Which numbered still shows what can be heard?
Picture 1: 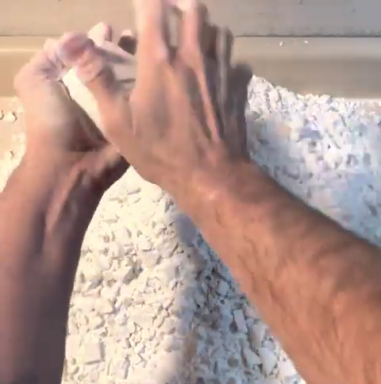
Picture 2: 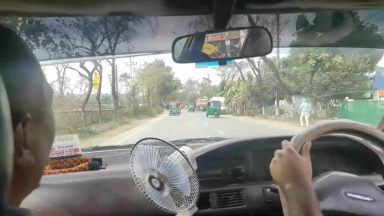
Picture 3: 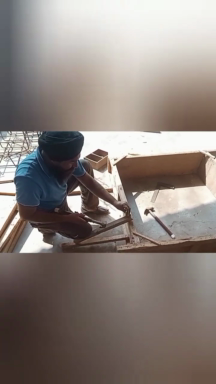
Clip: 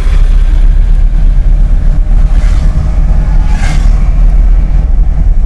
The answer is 2